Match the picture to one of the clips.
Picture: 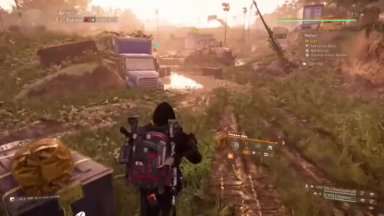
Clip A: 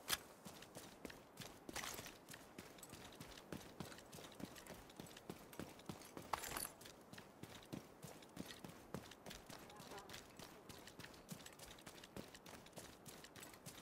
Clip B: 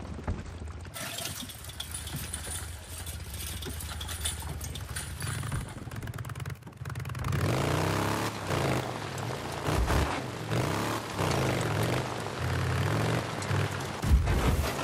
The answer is A